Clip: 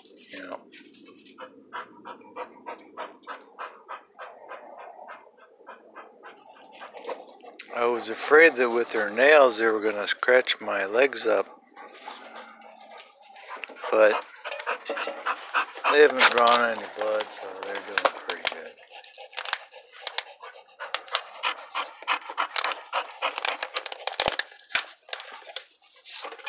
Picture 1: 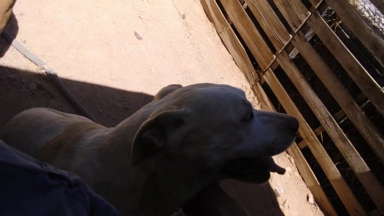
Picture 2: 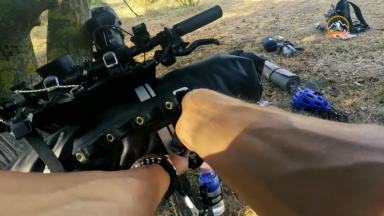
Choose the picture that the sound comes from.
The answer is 1